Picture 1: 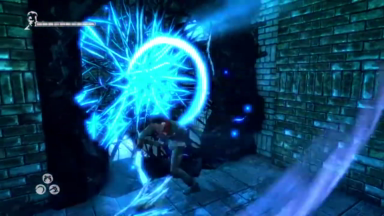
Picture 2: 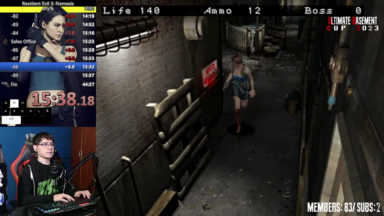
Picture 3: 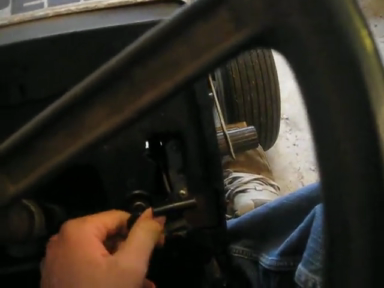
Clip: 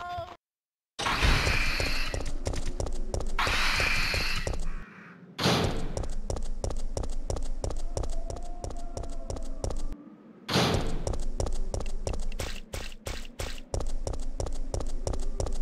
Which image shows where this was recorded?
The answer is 2